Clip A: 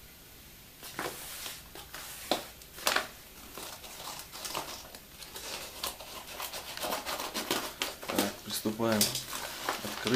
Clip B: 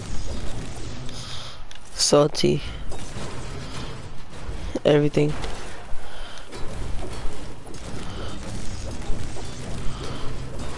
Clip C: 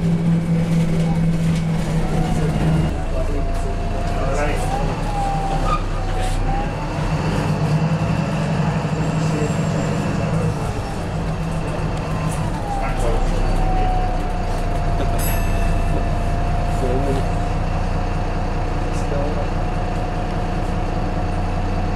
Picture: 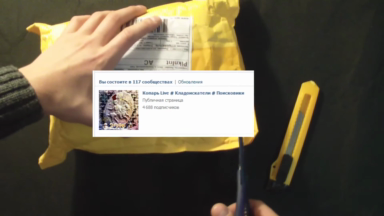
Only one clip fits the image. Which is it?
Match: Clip A